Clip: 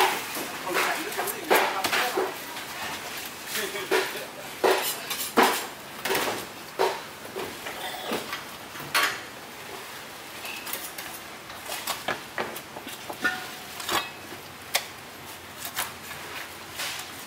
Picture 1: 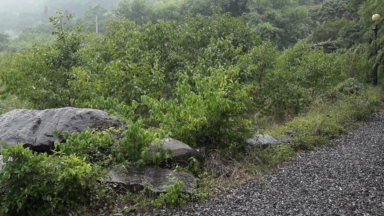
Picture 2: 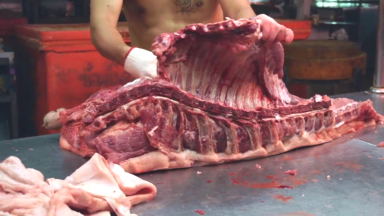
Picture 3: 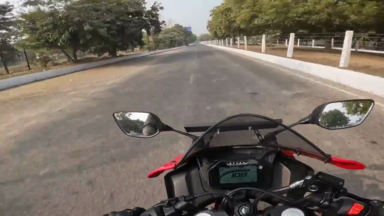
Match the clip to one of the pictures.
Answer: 2